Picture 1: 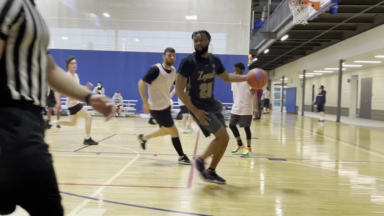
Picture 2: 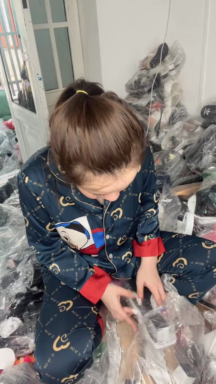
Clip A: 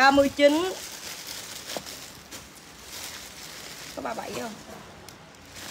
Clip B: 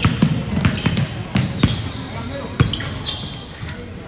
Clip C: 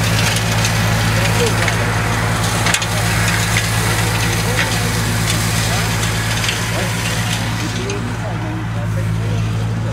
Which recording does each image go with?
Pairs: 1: B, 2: A